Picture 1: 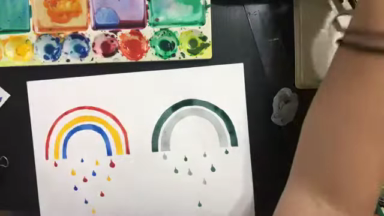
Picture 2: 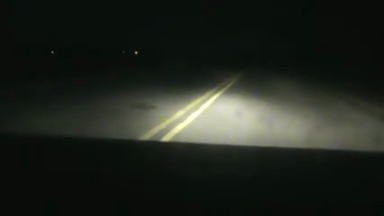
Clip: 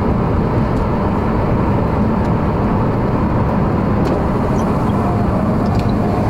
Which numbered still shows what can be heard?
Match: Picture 2